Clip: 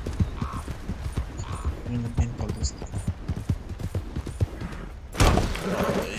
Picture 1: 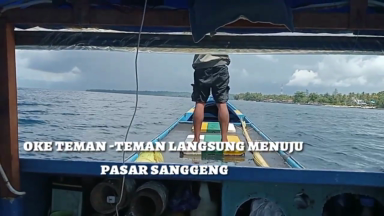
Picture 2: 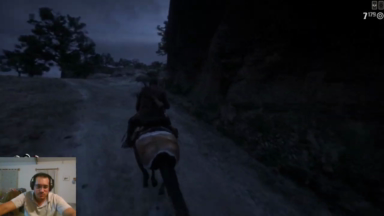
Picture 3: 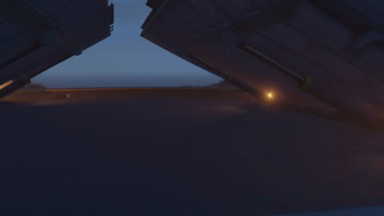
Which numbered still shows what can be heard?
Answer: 2